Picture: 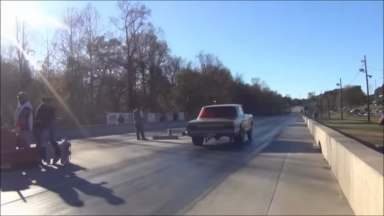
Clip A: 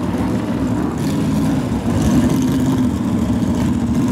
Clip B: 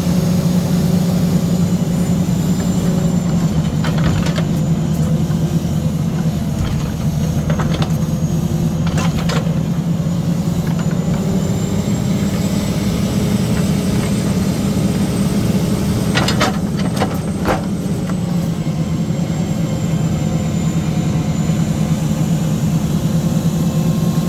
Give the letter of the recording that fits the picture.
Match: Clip A